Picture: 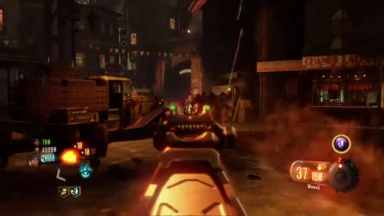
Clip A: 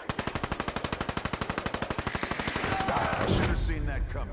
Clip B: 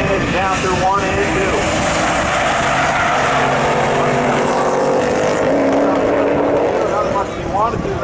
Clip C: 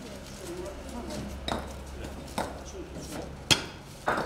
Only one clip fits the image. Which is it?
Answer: A